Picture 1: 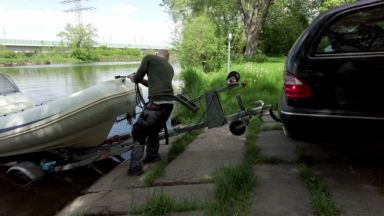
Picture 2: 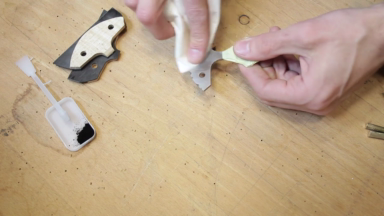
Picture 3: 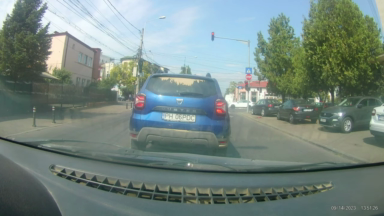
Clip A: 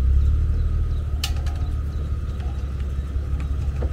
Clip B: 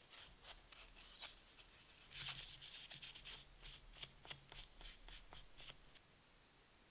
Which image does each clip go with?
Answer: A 1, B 2